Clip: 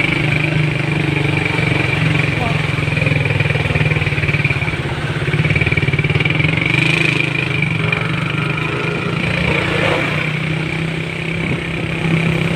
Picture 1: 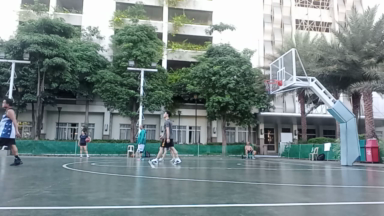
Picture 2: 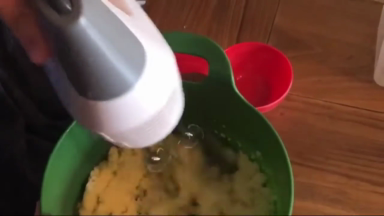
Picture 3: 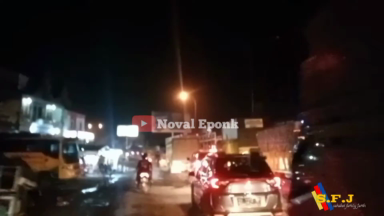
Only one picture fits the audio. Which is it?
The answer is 3